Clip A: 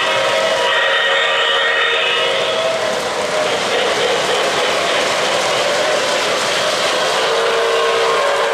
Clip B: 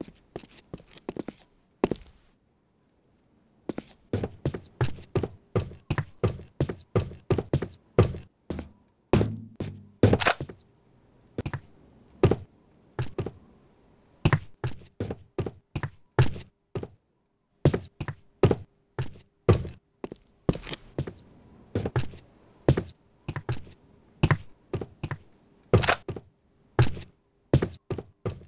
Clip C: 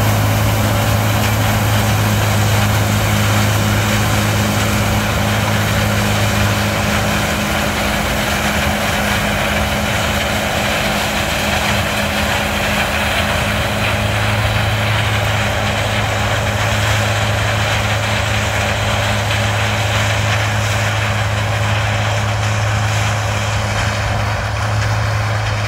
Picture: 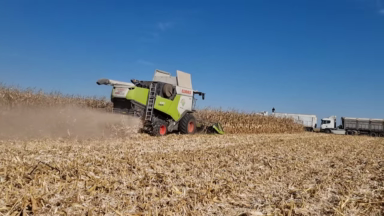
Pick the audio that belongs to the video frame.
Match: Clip C